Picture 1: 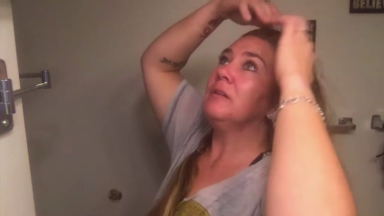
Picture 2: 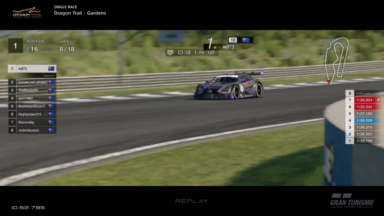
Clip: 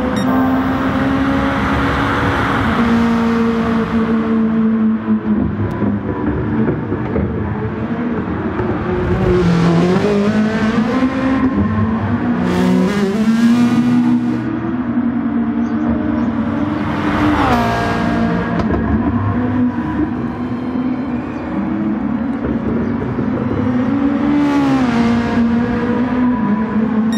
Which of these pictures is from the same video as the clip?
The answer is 2